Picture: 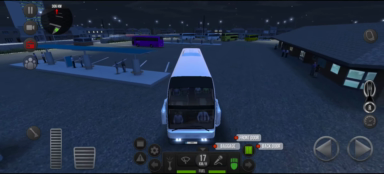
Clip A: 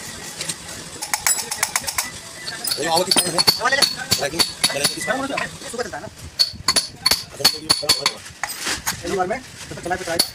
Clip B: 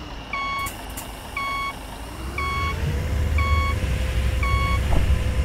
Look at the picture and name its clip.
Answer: B